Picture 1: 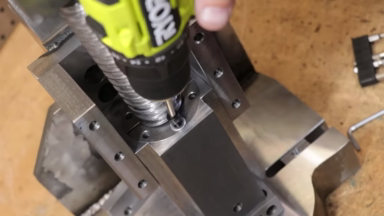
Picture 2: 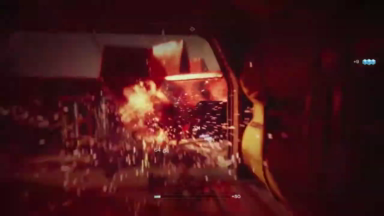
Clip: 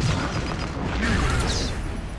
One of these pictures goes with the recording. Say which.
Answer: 2